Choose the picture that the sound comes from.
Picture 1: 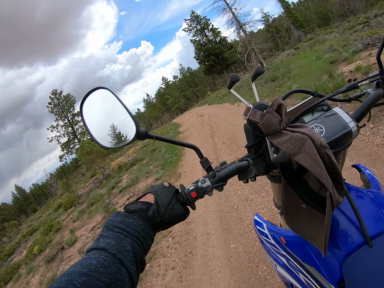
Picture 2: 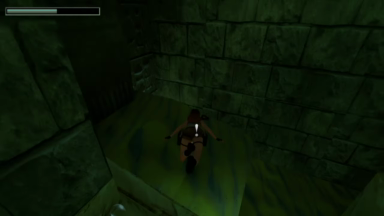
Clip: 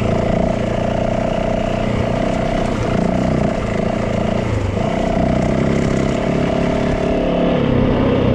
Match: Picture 1